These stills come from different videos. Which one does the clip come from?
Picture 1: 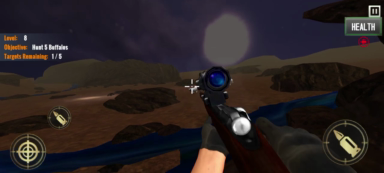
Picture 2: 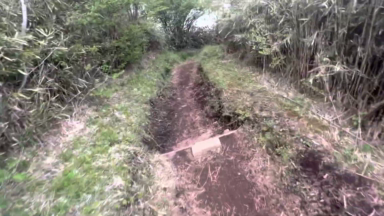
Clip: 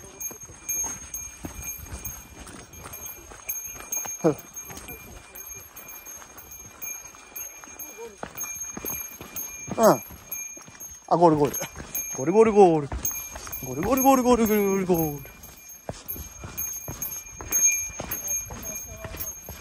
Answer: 2